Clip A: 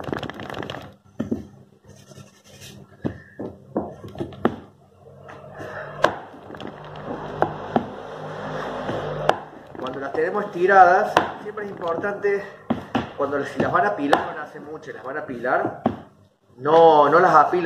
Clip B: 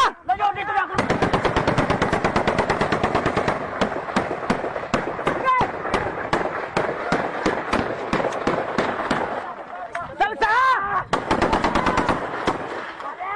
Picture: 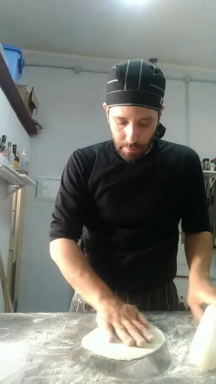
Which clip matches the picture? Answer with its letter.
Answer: A